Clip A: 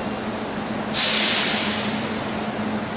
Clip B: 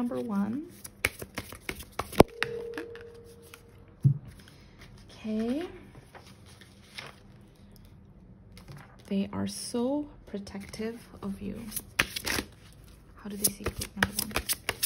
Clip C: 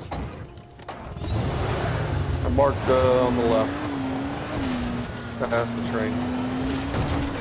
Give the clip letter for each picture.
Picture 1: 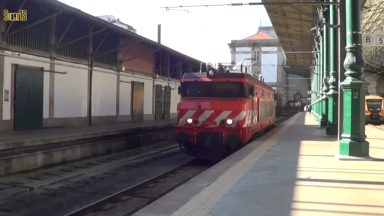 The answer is A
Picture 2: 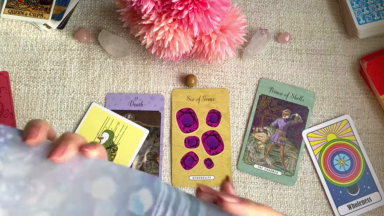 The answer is B